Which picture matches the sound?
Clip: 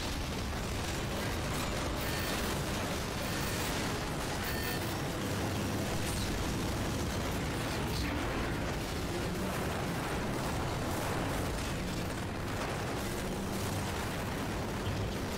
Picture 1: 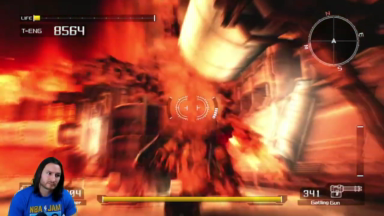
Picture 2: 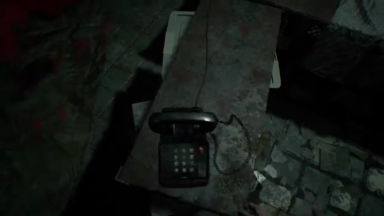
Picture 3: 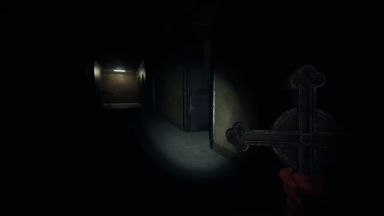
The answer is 1